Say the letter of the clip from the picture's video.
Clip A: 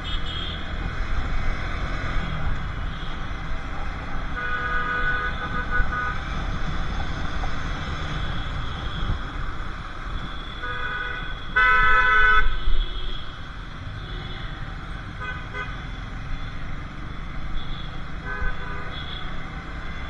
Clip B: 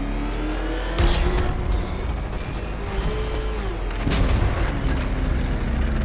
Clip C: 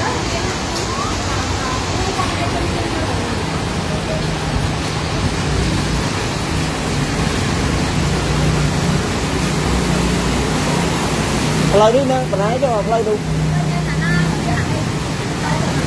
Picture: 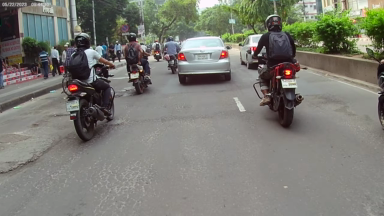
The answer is A